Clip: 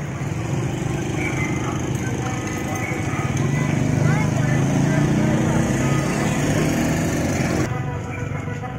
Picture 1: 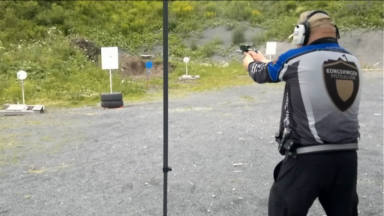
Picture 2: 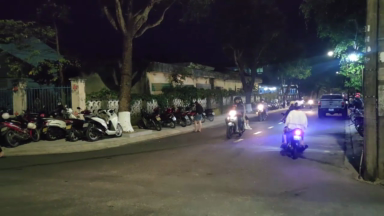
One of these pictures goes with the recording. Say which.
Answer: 2